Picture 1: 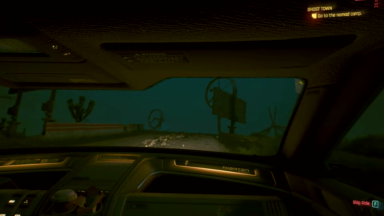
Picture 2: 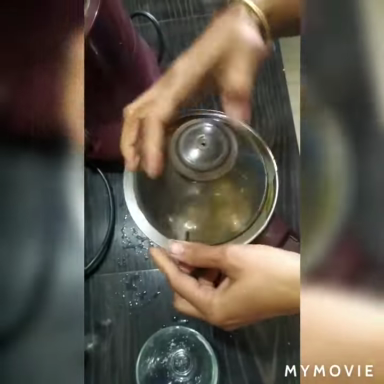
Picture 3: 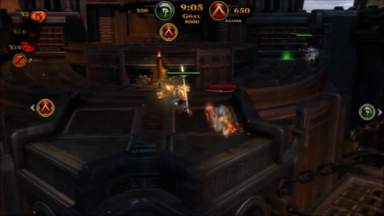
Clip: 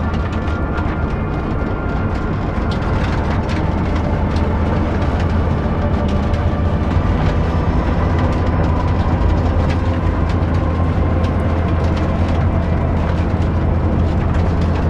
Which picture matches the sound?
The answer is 1